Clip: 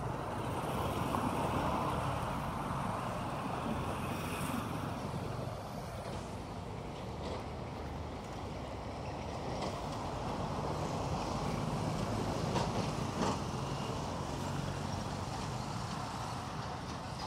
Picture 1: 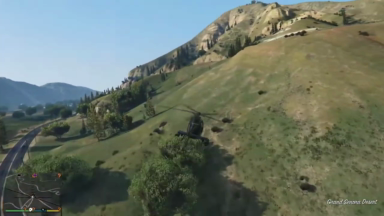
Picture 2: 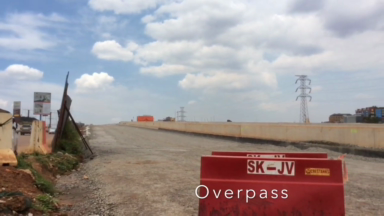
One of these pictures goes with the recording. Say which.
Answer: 2